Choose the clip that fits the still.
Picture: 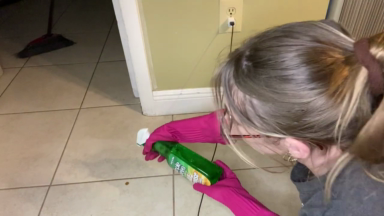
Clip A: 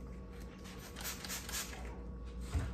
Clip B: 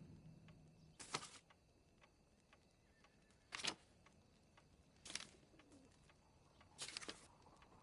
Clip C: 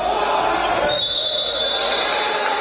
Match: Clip A